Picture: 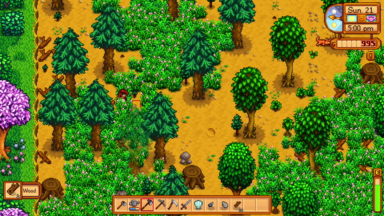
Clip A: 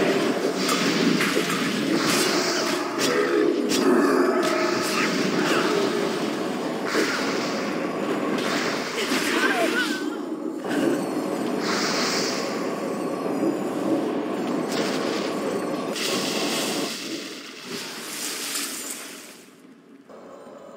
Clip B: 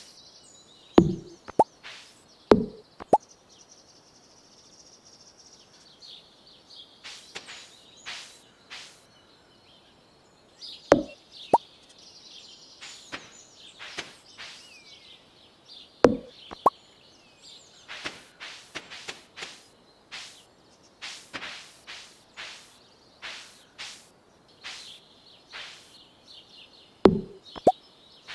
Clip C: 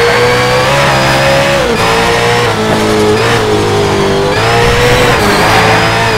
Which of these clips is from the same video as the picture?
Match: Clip B